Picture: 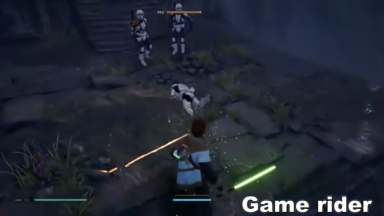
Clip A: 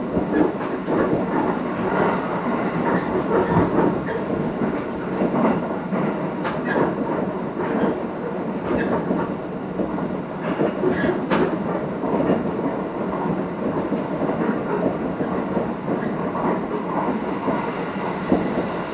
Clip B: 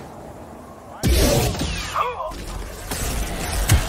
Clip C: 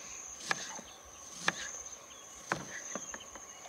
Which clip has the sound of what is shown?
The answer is B